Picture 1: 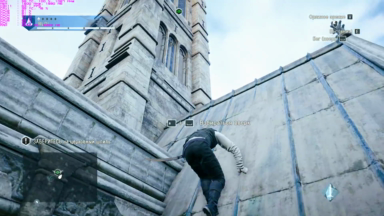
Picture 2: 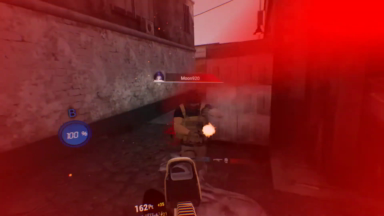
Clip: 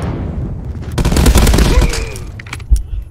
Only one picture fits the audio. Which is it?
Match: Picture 2